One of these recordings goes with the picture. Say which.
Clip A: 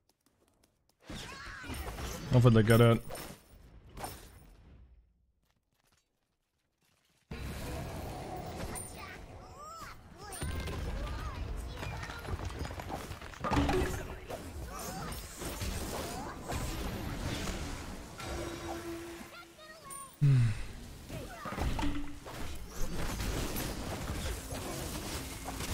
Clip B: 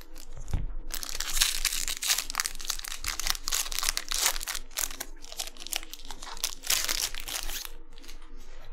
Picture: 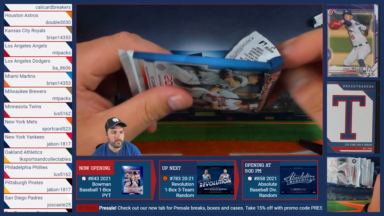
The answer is B